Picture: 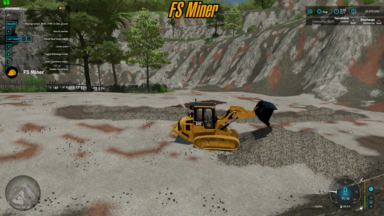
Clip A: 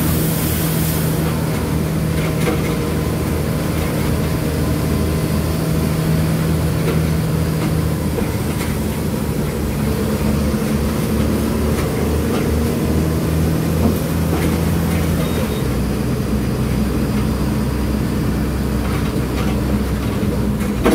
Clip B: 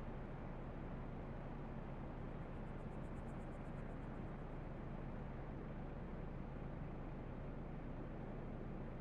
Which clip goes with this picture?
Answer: B